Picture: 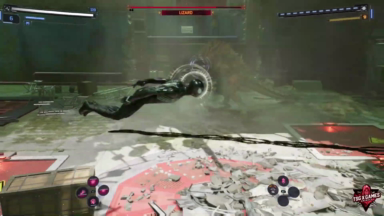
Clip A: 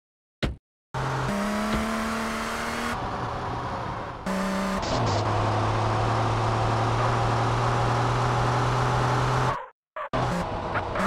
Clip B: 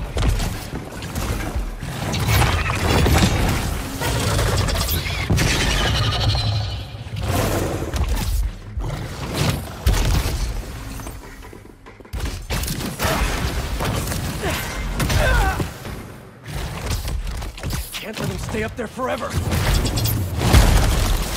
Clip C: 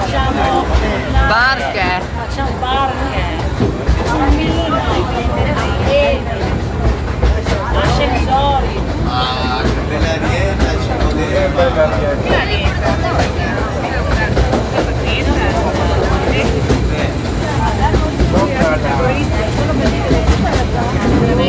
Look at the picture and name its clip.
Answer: B